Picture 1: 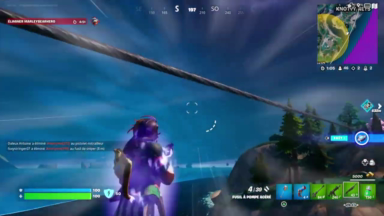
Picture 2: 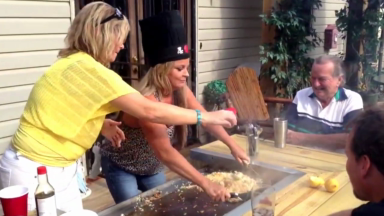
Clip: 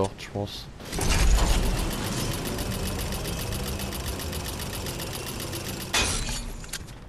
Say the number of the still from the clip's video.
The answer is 1